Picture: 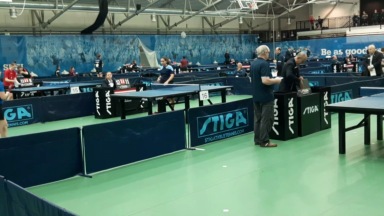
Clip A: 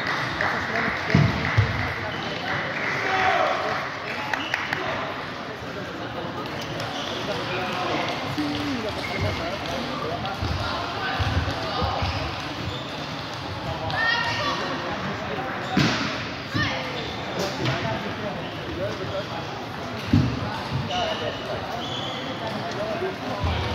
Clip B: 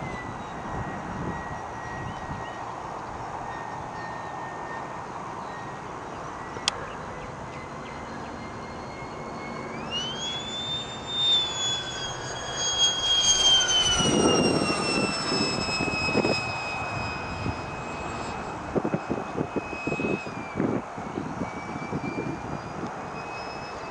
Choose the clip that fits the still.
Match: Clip A